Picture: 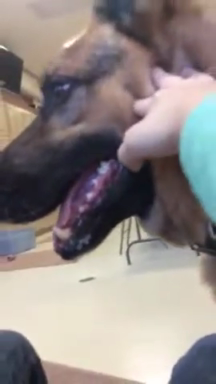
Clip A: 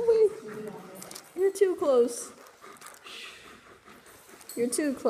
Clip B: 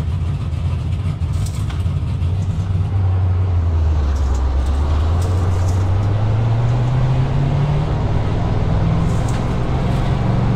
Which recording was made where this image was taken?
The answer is A